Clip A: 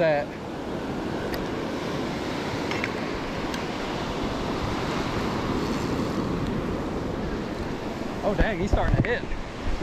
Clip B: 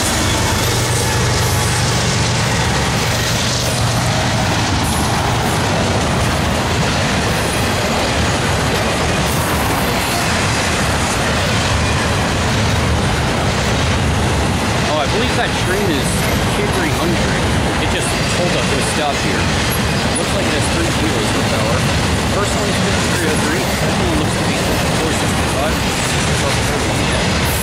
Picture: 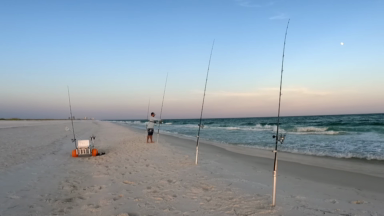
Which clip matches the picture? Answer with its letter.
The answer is A